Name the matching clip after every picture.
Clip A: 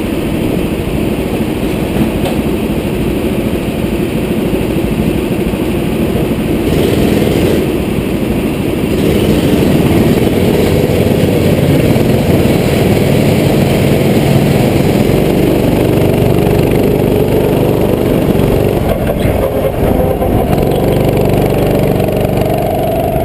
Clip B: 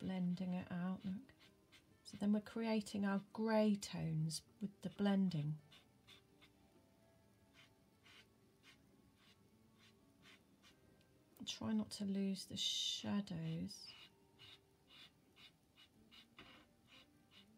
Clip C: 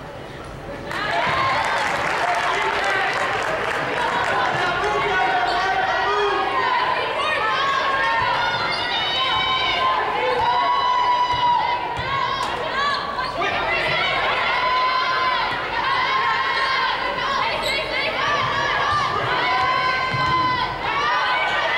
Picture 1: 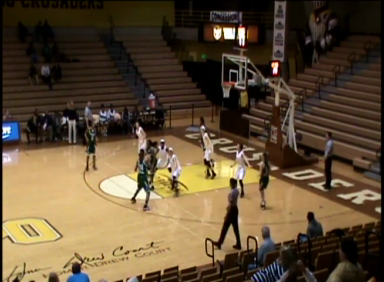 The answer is C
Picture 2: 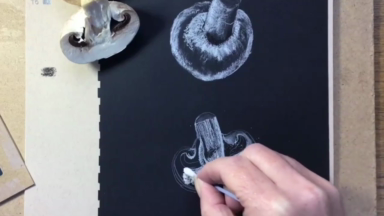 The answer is B